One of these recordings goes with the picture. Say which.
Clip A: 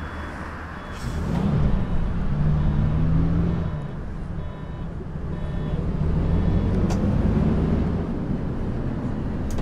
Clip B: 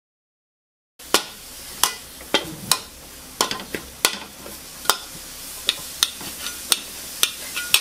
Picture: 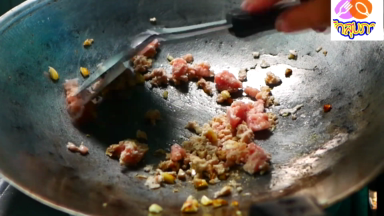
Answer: B